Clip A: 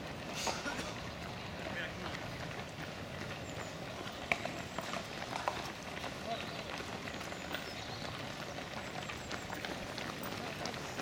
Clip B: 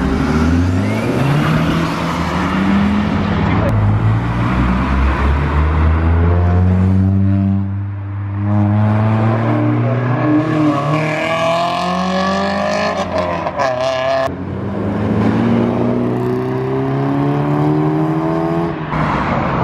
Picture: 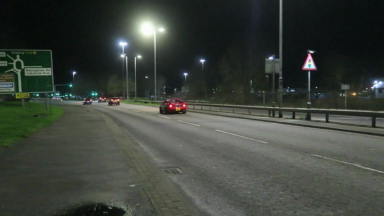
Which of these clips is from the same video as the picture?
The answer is B